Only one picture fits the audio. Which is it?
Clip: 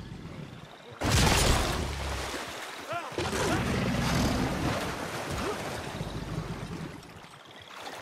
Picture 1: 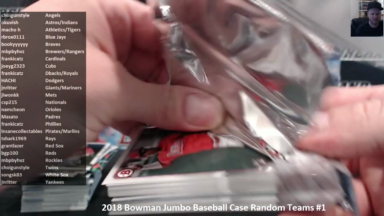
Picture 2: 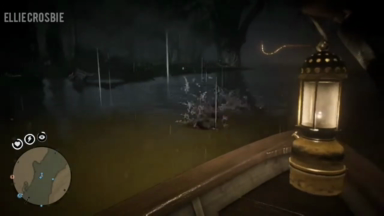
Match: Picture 2